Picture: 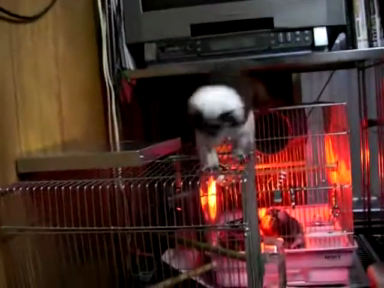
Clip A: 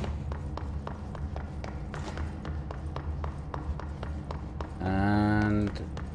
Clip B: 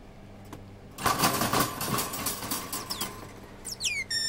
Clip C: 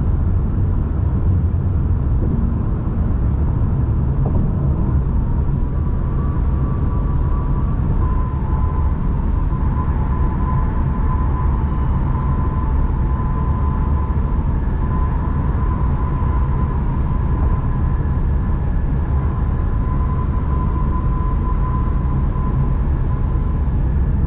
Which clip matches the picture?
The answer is B